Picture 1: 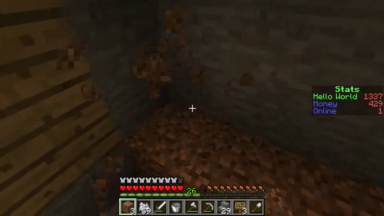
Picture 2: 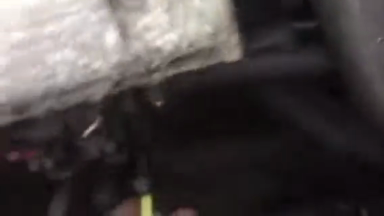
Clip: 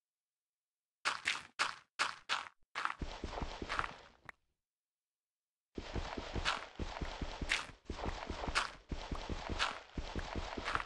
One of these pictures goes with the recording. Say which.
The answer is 1